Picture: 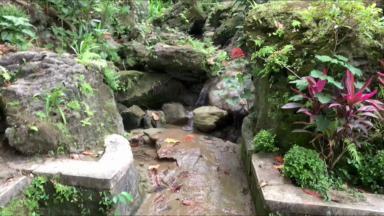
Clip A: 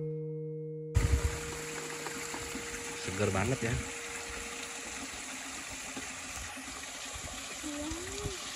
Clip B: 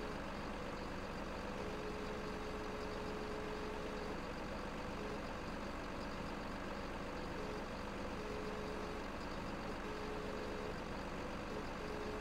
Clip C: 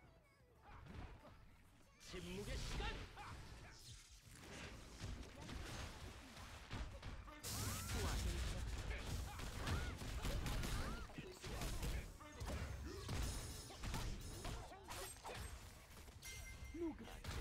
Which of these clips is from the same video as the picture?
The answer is A